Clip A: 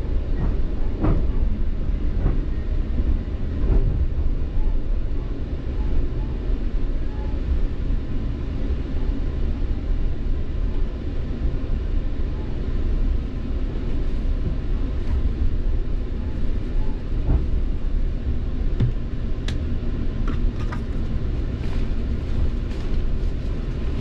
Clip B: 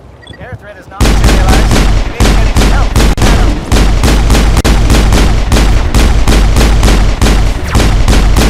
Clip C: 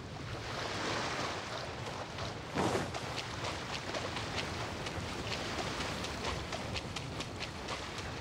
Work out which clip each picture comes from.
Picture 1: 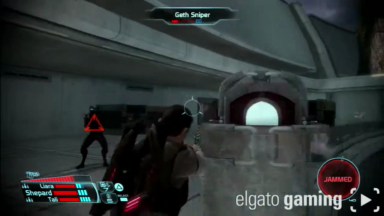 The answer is B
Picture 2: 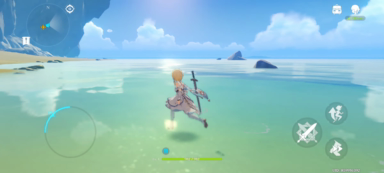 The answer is C